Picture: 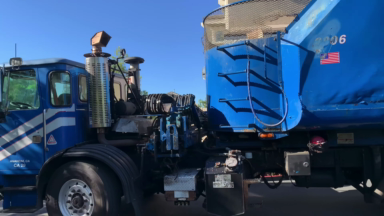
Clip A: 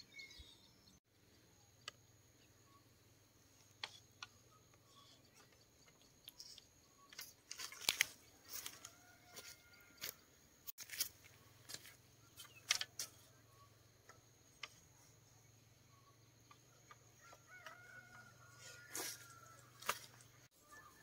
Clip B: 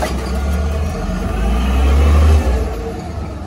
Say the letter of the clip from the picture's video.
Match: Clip B